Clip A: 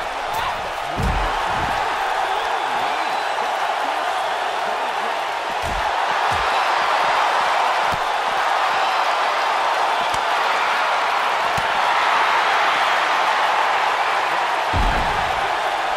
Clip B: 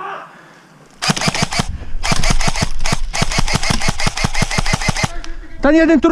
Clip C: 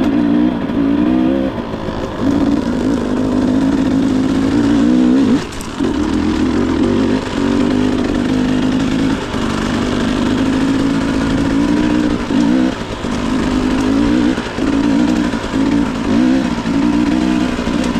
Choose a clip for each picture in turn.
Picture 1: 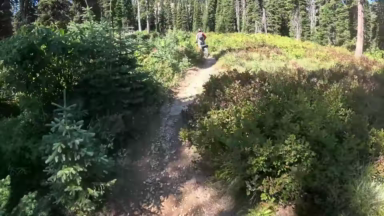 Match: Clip C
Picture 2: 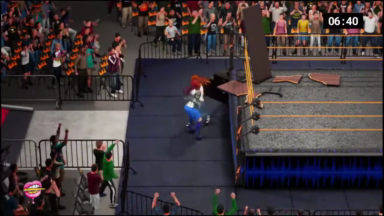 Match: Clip A